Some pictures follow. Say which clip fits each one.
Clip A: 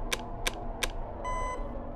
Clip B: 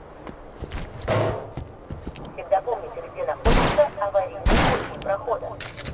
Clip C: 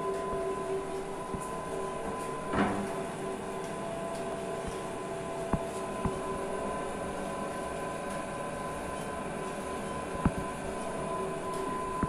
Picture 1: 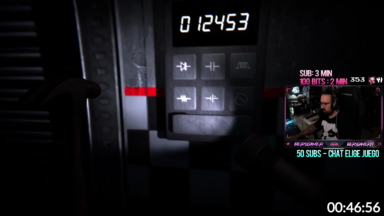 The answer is A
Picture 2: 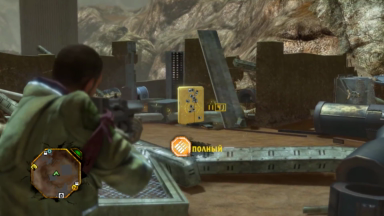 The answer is B